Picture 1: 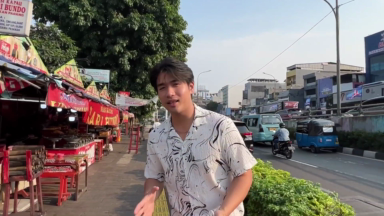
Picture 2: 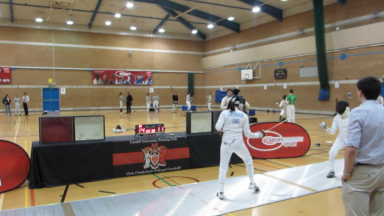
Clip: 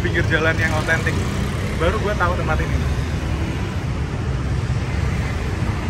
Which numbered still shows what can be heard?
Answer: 1